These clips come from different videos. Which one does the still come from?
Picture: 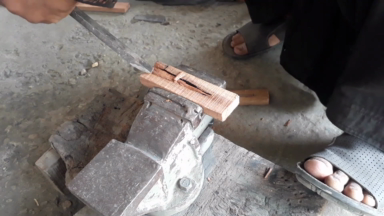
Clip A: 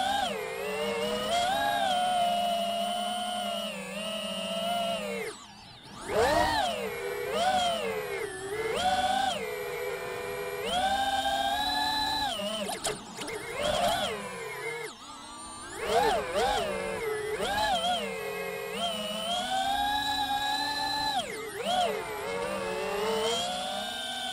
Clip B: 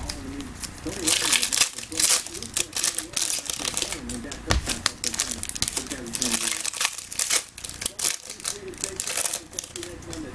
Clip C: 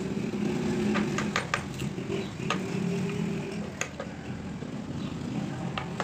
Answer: C